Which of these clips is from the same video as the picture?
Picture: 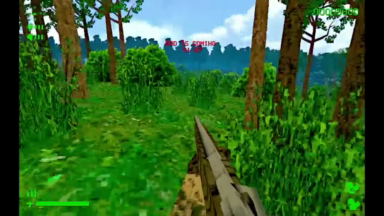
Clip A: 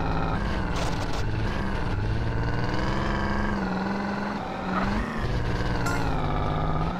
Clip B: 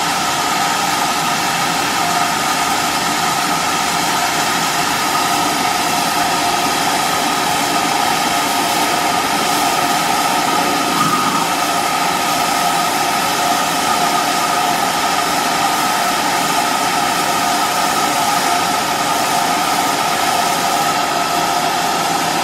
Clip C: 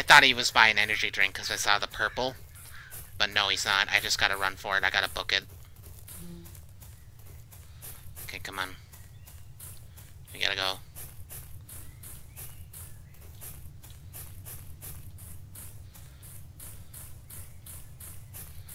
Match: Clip C